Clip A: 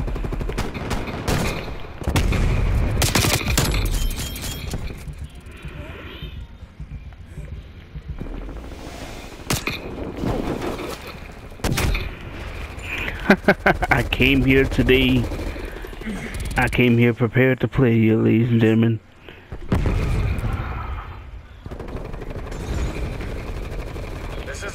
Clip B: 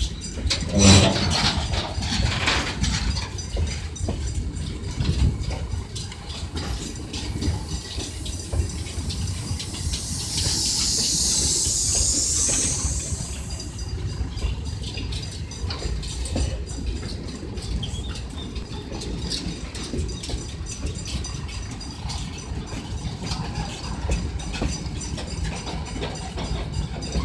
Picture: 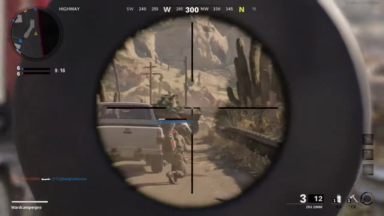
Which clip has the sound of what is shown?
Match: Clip A